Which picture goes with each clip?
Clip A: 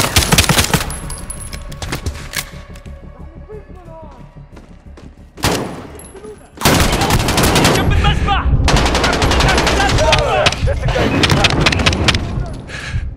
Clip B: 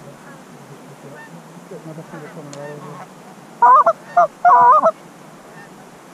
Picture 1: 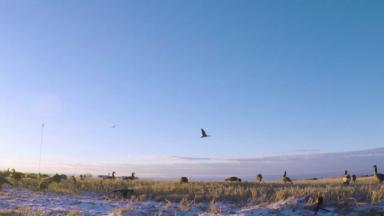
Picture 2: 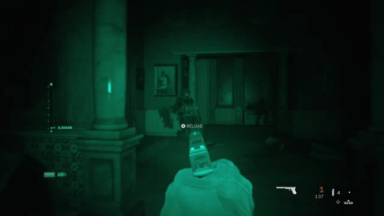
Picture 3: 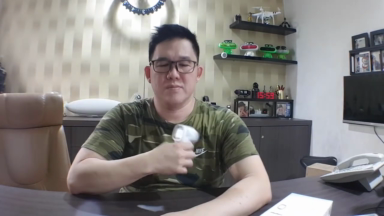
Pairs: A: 2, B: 1